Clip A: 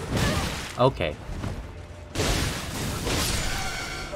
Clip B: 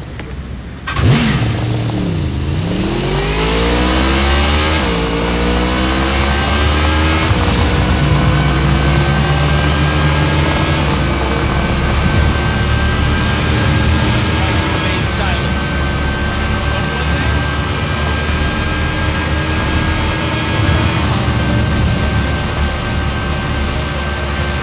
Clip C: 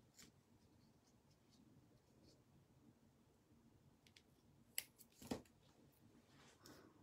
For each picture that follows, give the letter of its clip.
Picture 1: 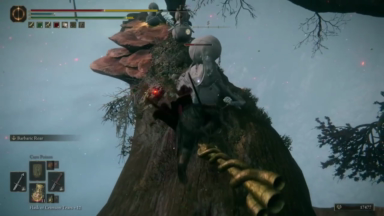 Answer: A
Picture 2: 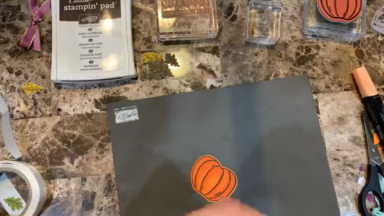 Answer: C